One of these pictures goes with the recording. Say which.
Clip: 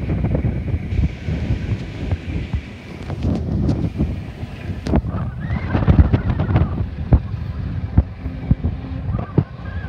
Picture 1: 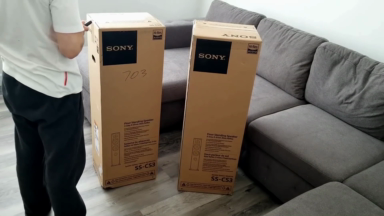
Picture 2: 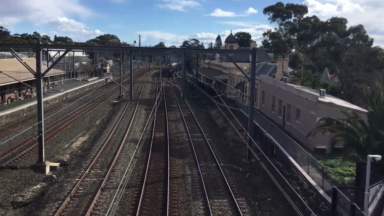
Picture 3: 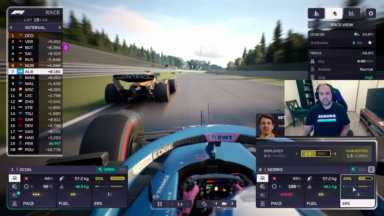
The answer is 2